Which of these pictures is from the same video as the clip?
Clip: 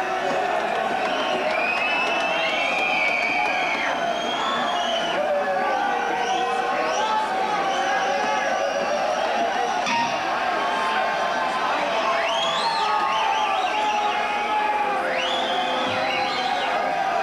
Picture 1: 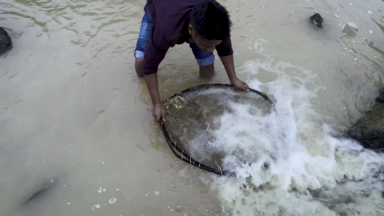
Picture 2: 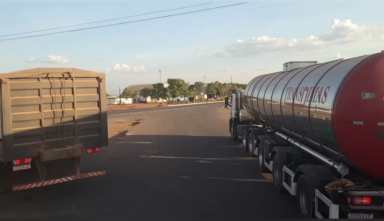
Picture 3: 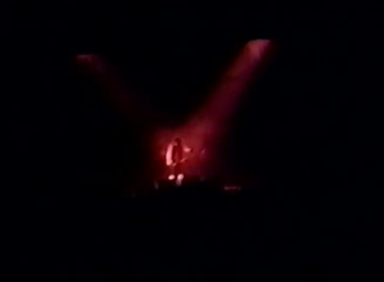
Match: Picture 3